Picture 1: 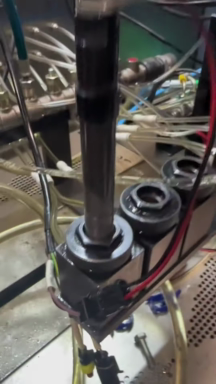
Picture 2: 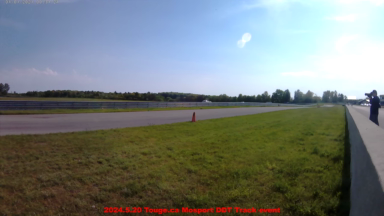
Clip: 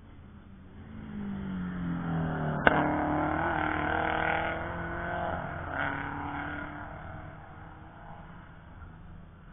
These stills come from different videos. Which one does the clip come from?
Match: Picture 2